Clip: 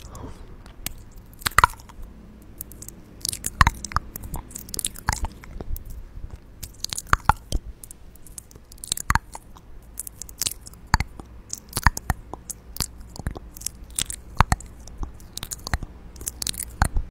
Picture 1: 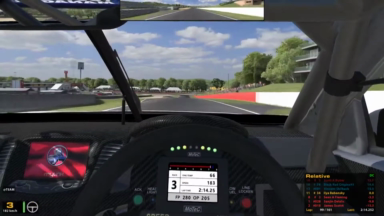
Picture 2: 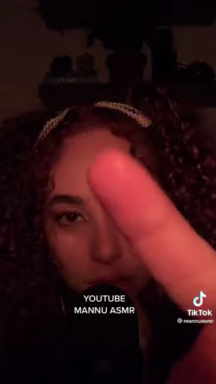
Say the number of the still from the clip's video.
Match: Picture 2